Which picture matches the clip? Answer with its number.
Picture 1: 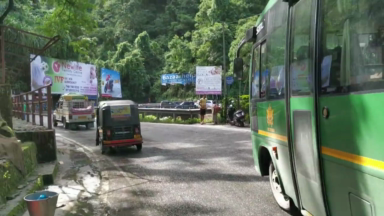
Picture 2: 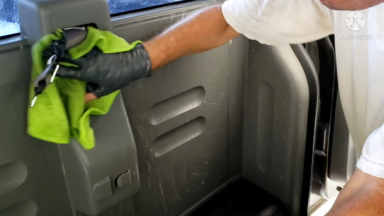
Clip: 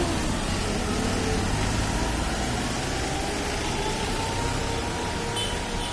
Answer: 1